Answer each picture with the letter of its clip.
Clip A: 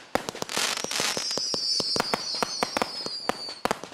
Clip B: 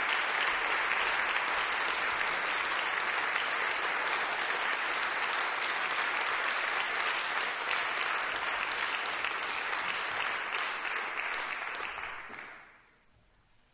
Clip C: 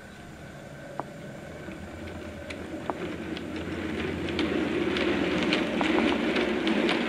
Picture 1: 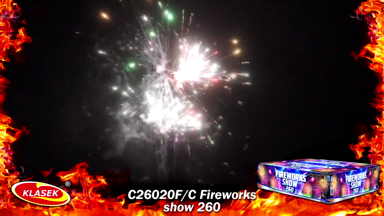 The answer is A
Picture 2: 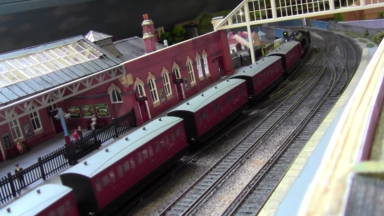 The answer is C